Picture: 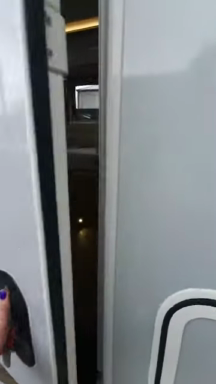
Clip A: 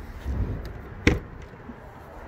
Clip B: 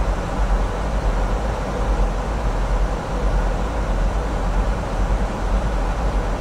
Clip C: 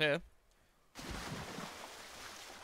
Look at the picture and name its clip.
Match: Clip A